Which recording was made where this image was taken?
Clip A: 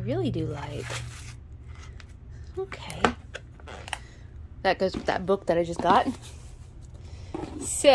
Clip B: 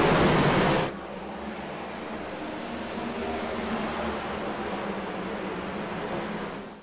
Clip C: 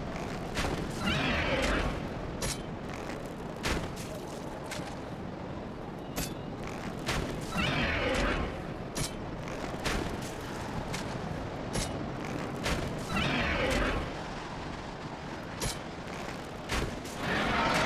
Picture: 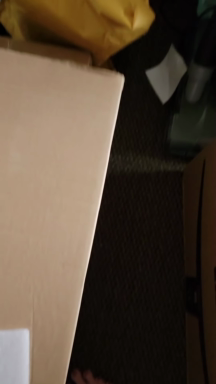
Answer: A